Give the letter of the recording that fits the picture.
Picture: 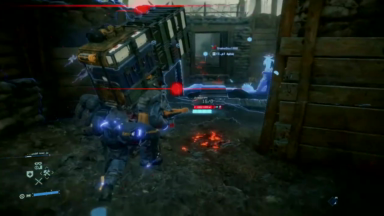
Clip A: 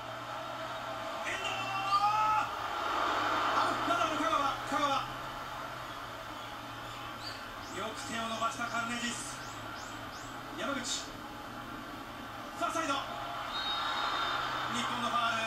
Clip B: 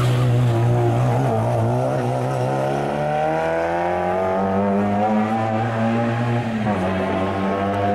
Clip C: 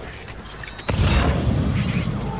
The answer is C